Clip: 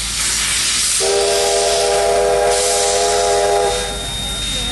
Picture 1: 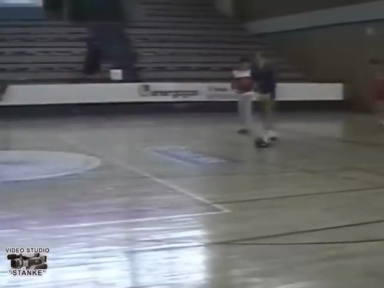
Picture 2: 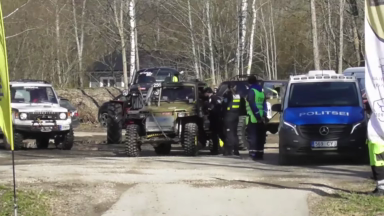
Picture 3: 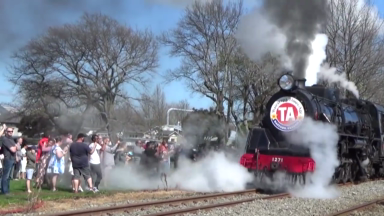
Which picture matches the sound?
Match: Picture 3